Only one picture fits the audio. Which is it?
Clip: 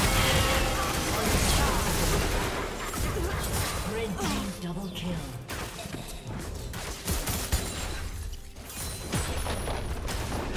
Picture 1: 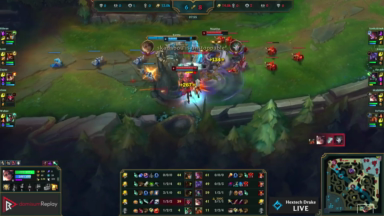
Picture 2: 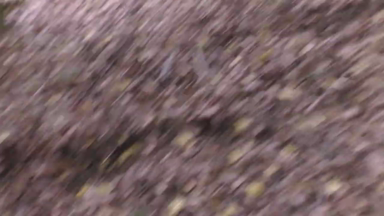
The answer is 1